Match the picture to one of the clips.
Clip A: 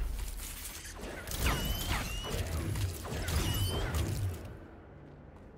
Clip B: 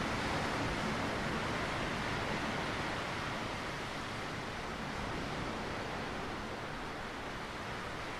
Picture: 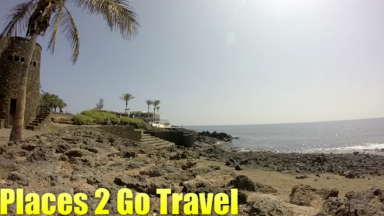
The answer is B